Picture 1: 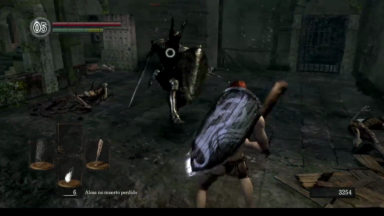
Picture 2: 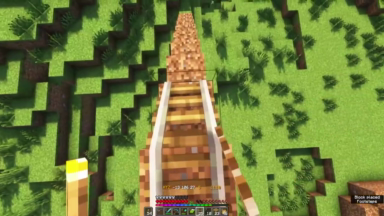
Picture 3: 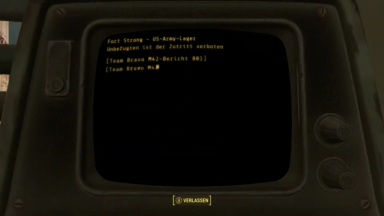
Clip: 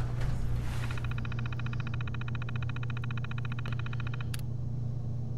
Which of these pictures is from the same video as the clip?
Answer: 3